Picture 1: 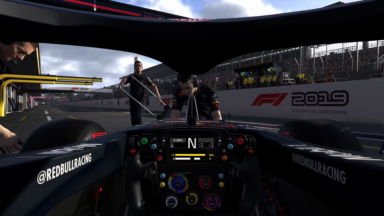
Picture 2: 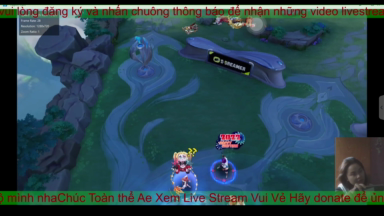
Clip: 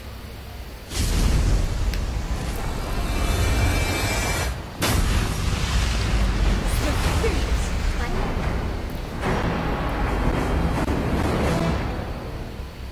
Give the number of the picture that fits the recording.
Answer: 2